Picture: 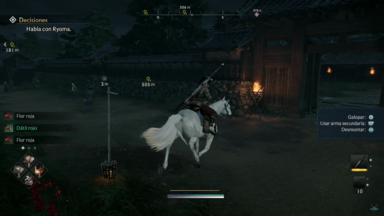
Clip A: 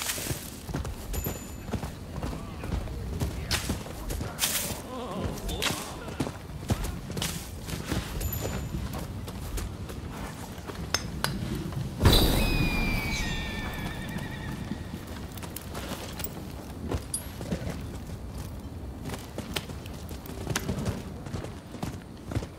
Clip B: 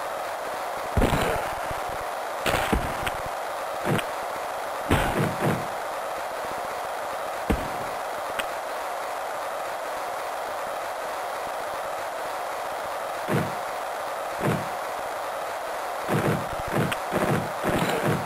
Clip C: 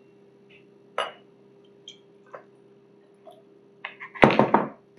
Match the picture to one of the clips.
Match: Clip A